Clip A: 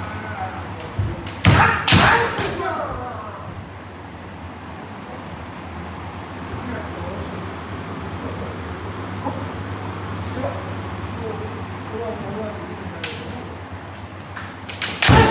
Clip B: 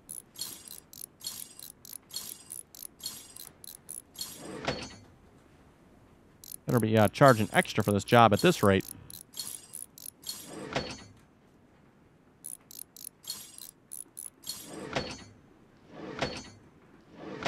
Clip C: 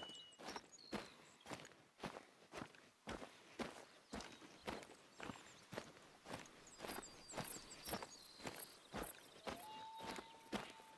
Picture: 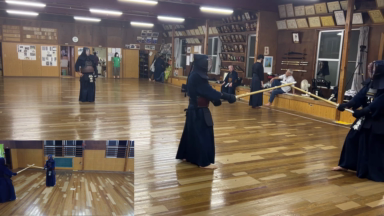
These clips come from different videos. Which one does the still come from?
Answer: A